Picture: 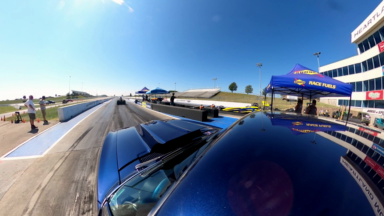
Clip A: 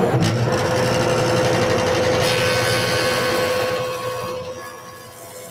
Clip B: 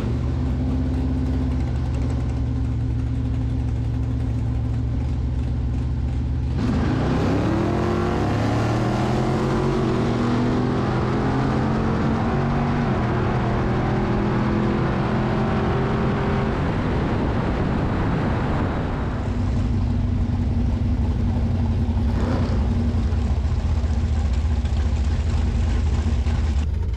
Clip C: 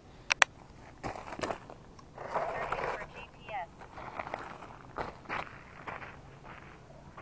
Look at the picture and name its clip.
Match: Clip B